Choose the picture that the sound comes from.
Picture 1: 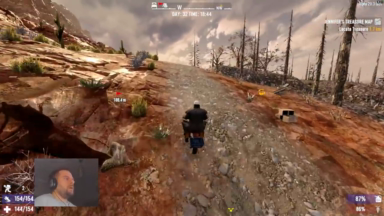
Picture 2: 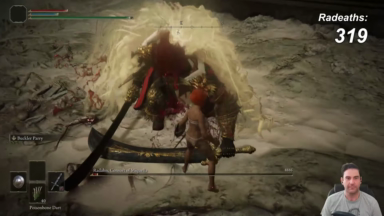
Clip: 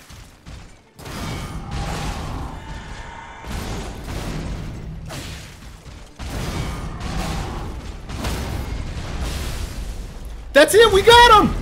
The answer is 2